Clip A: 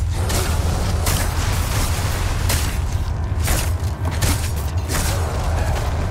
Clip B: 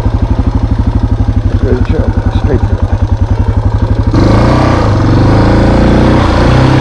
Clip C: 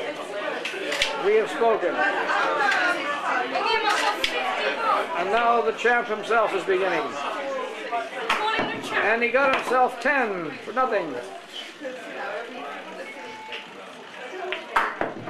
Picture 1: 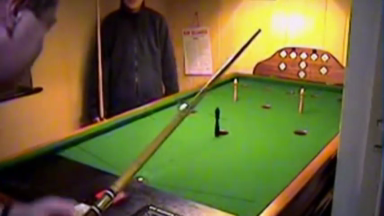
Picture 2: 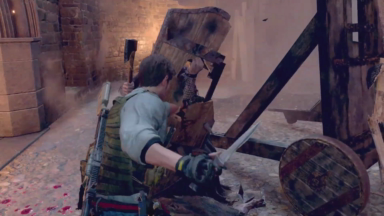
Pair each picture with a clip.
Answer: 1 C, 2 A